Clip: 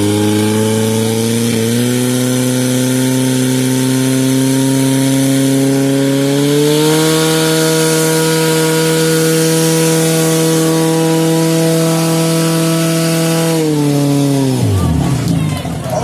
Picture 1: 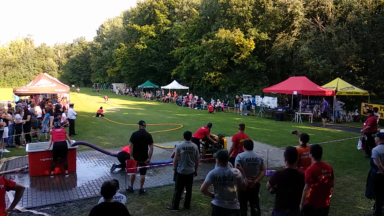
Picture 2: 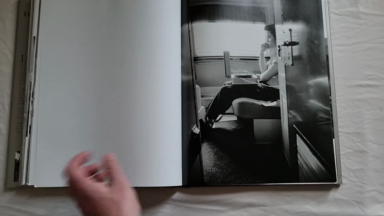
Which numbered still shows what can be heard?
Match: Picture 1